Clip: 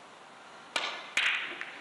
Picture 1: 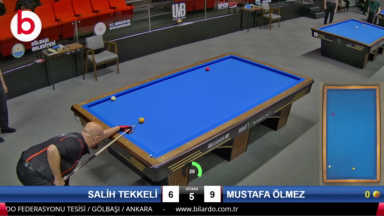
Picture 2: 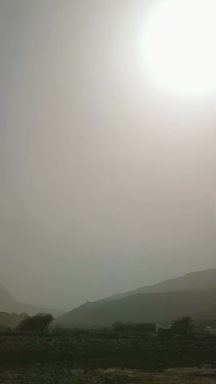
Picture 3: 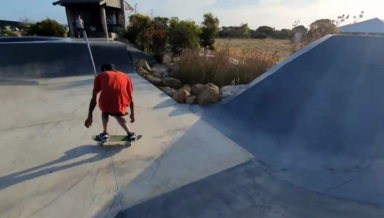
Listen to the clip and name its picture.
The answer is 1